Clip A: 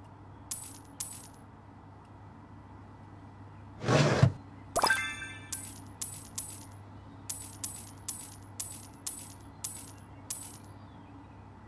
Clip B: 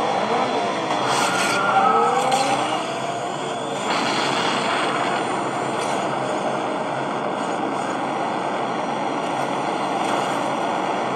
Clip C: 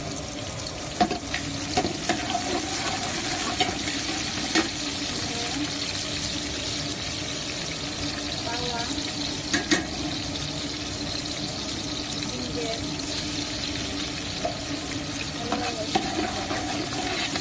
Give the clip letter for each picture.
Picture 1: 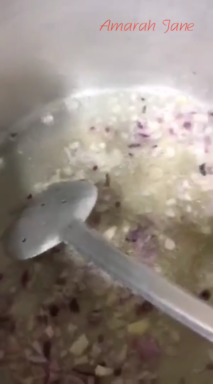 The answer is C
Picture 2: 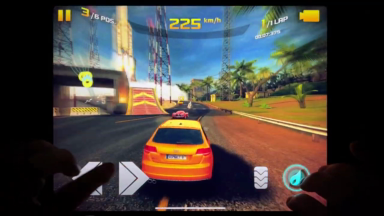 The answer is B